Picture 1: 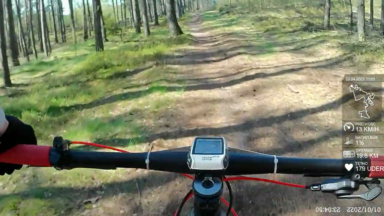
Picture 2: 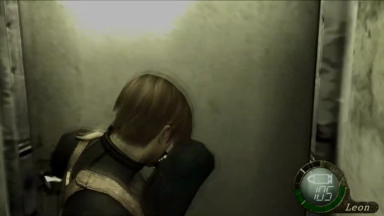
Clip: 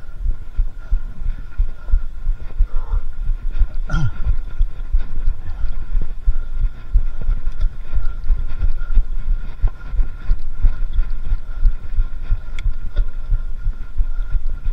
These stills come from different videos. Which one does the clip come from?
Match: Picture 1